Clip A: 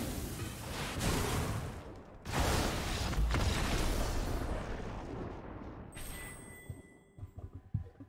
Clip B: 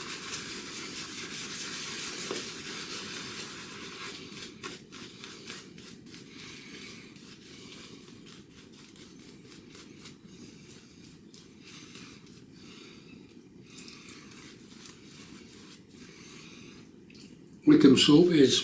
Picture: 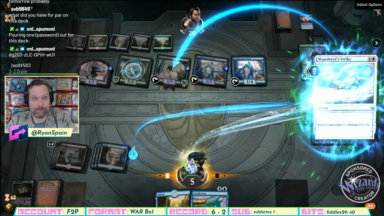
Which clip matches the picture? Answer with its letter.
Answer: A